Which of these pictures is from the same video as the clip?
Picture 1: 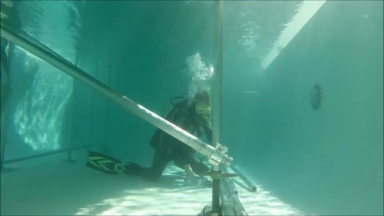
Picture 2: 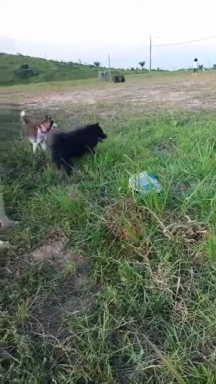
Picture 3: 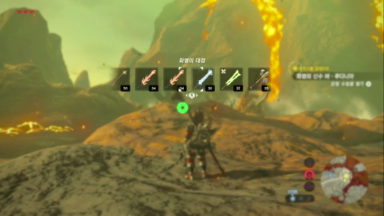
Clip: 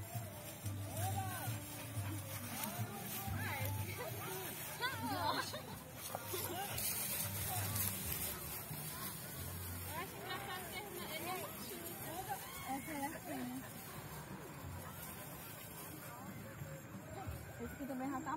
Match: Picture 2